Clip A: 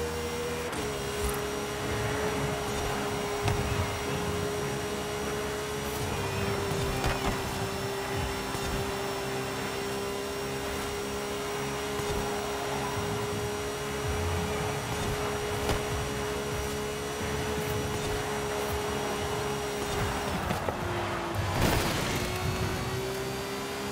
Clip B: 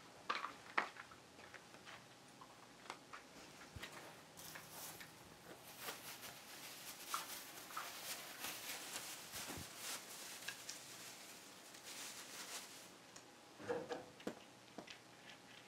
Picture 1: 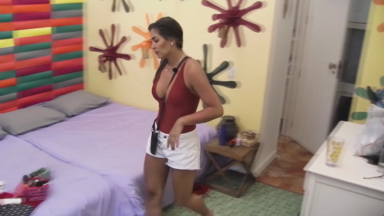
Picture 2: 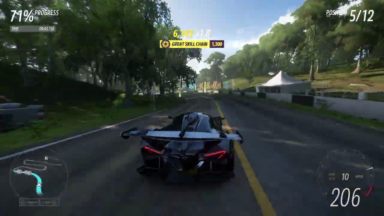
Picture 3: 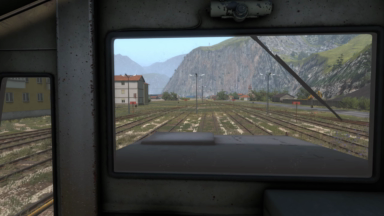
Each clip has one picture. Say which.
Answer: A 2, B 1